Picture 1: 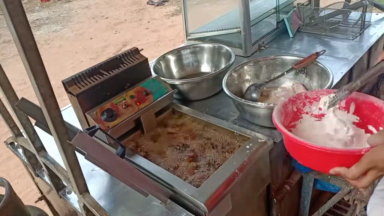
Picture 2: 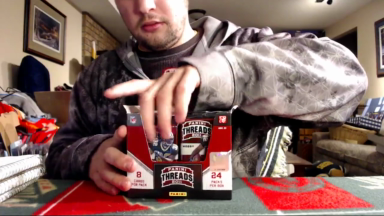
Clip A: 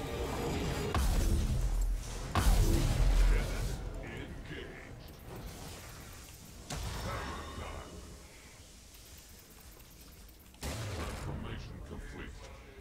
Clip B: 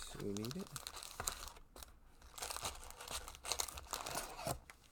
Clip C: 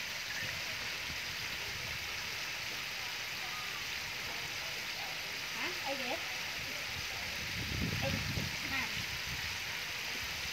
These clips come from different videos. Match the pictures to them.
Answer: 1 C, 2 B